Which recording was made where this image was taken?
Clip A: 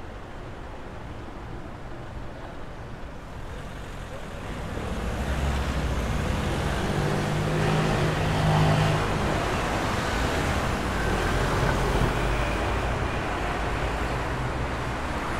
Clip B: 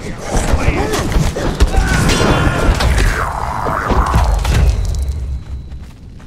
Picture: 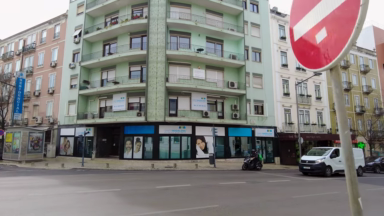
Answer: A